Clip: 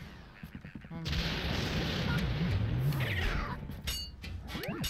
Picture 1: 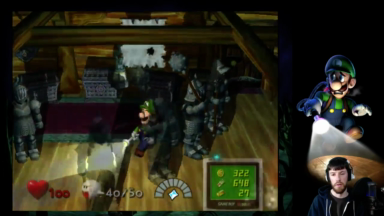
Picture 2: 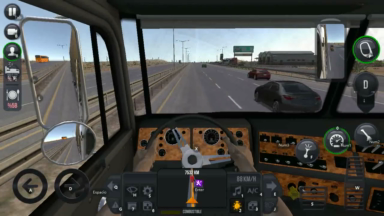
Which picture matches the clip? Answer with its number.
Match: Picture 1